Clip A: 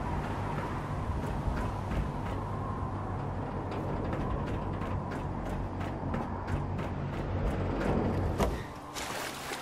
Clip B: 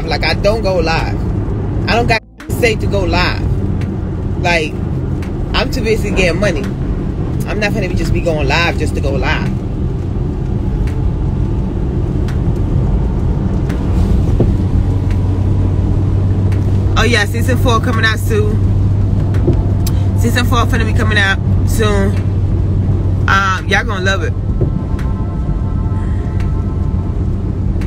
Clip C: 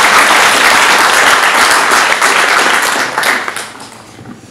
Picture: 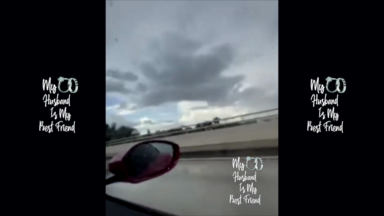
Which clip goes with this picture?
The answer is B